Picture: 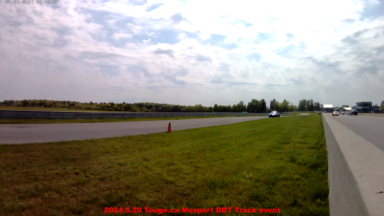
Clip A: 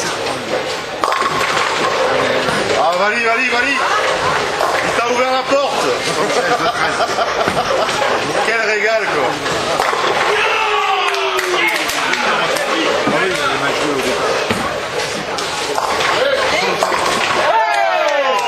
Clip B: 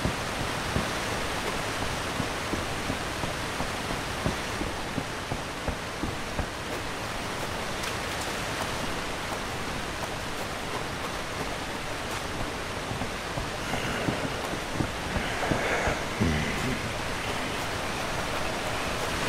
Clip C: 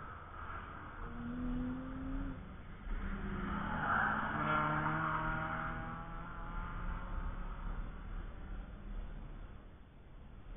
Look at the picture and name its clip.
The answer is C